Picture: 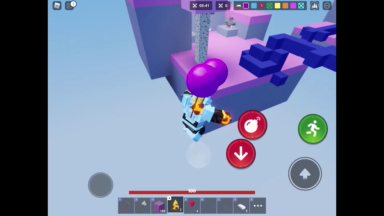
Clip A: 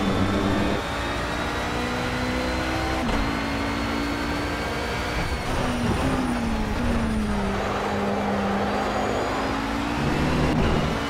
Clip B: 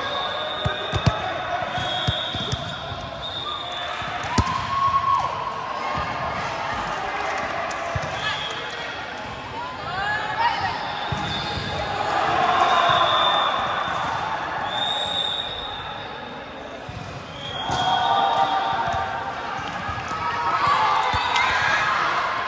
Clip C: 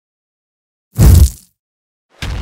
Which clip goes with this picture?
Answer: C